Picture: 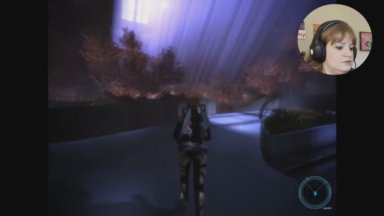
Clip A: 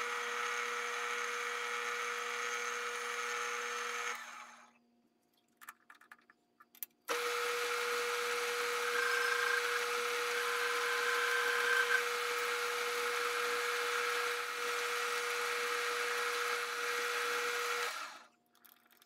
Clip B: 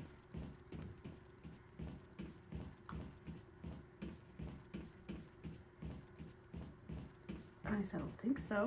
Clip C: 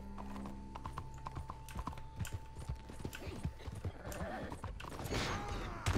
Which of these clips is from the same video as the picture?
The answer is B